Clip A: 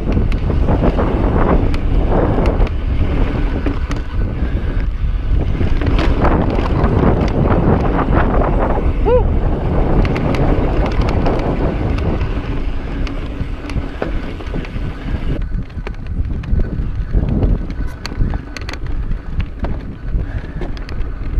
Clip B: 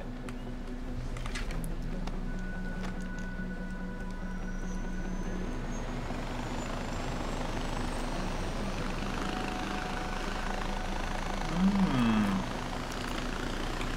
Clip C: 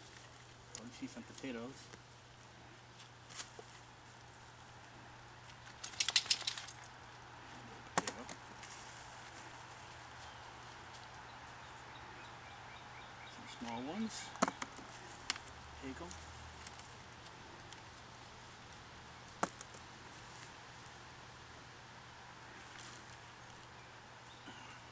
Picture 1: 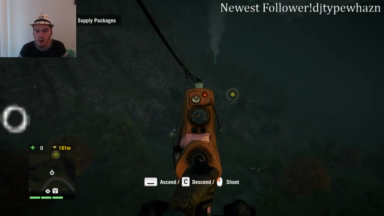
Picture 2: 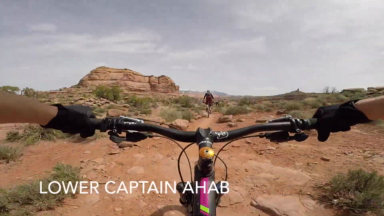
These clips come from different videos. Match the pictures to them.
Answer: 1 B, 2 A